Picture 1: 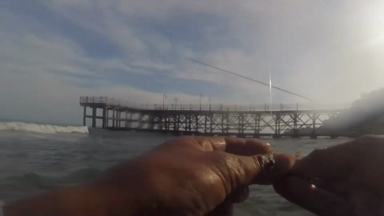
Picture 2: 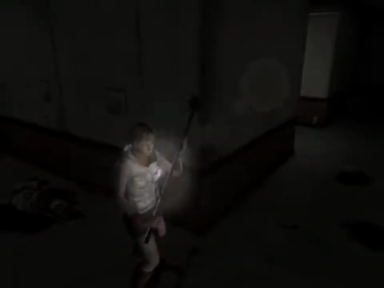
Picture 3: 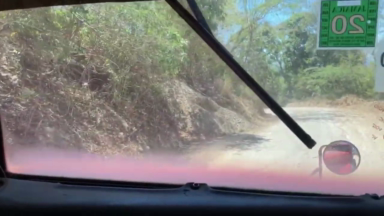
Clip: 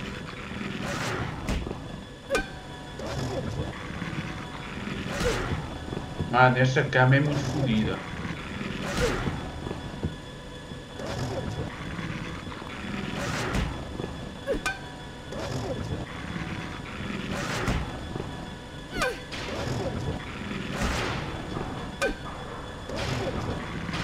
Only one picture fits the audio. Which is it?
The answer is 2